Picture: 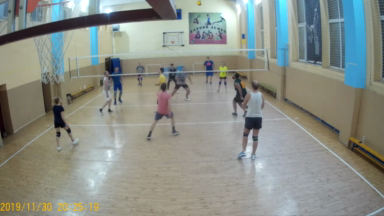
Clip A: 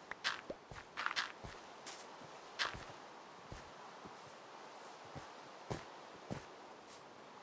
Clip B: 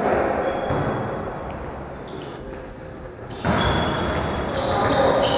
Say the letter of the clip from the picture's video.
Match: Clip B